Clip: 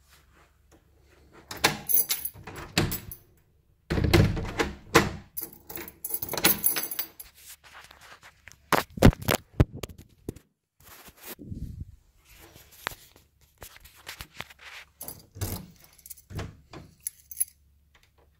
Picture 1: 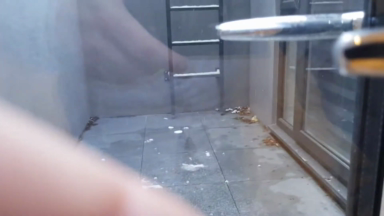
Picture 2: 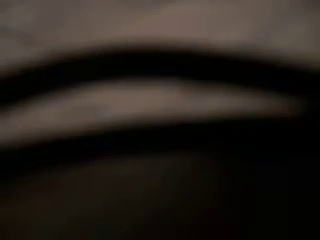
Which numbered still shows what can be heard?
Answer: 1